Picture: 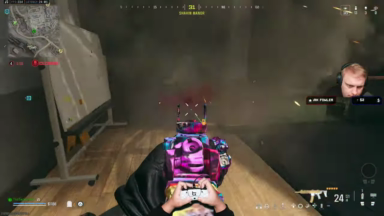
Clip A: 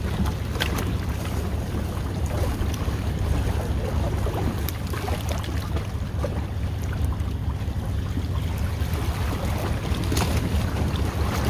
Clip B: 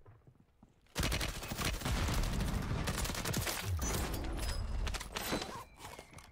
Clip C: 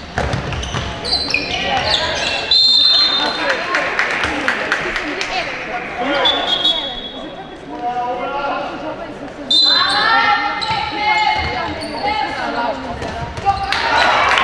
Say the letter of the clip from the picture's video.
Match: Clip B